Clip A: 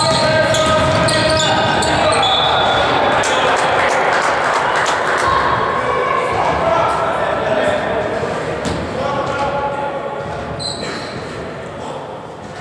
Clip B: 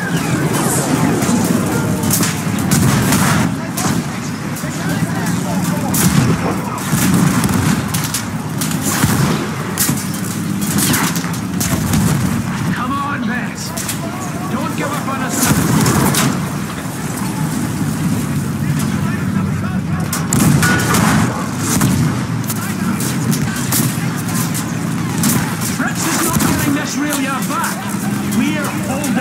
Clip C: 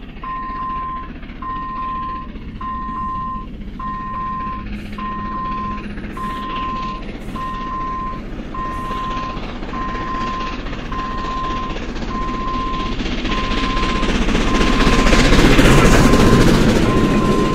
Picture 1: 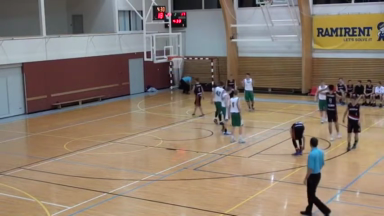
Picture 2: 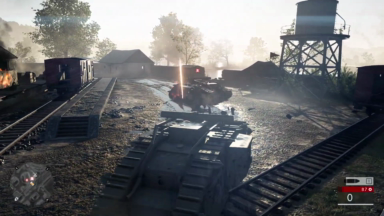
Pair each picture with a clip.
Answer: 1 A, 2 B